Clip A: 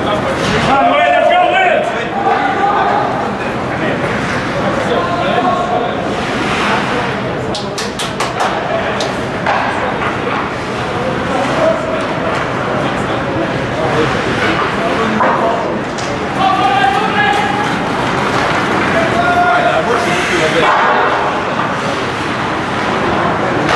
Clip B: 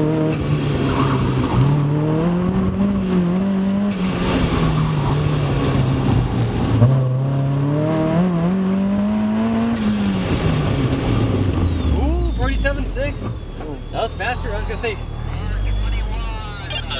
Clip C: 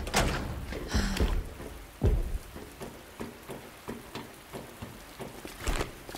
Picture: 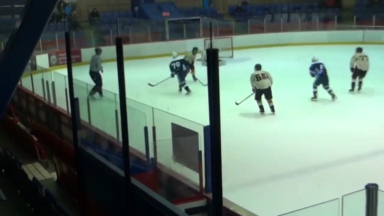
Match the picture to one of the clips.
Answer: A